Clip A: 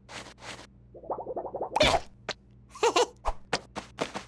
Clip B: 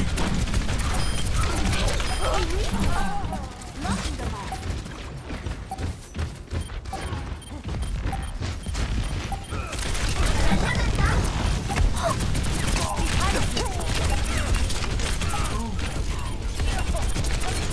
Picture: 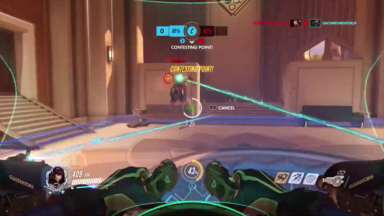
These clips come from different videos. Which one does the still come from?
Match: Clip B